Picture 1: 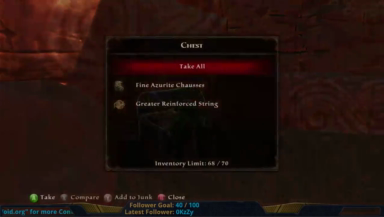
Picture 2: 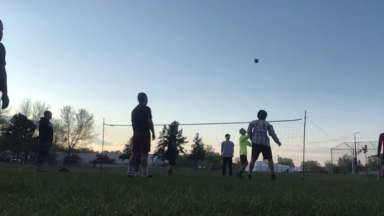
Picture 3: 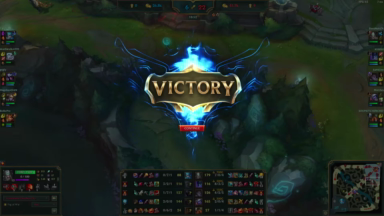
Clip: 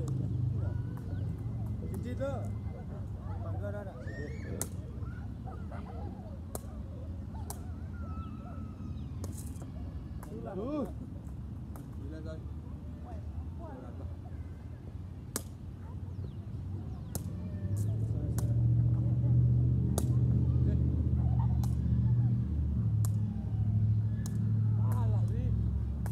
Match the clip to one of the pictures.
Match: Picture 2